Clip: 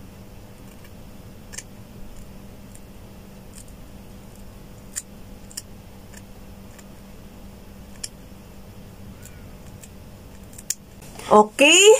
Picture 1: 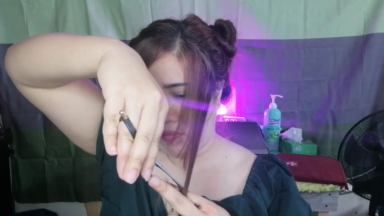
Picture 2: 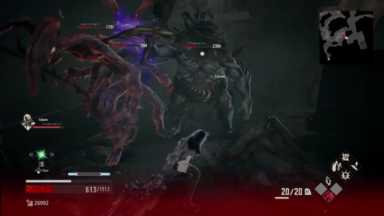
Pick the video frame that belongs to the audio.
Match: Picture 1